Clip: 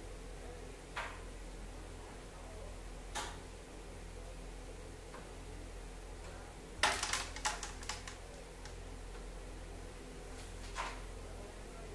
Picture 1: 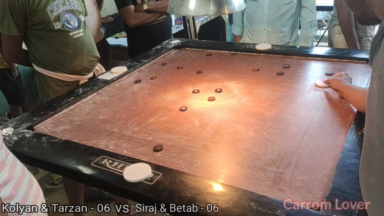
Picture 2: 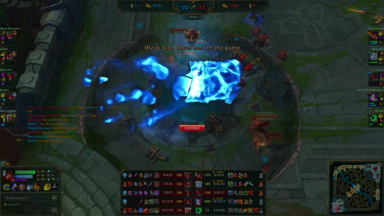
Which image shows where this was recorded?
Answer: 1